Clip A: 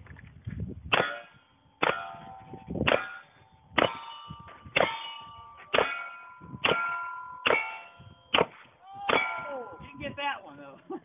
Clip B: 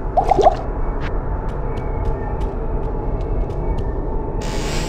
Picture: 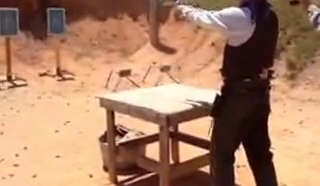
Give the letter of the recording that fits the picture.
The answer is A